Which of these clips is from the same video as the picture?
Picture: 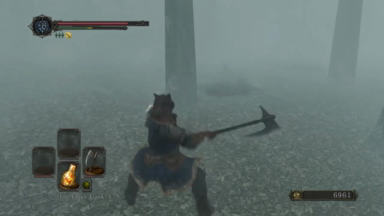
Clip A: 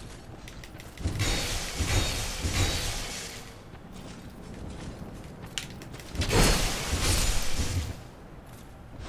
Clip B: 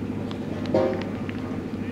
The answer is A